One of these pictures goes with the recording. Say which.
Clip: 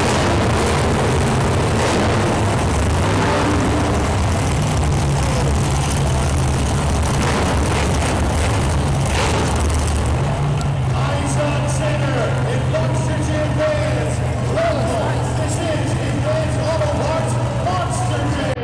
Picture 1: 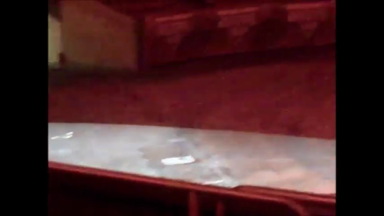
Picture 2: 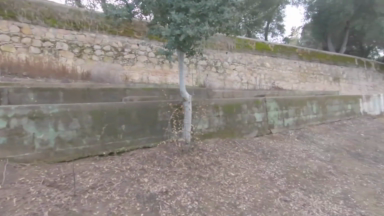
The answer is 1